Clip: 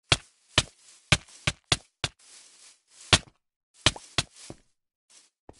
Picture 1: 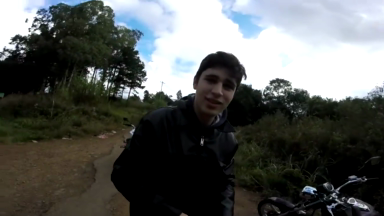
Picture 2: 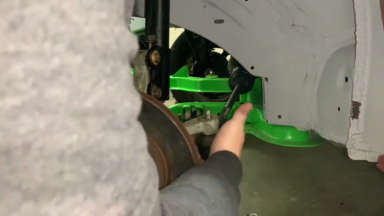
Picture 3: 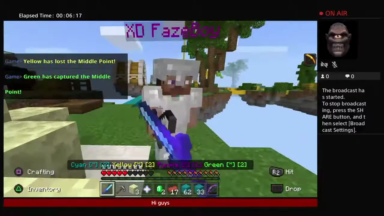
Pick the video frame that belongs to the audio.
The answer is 3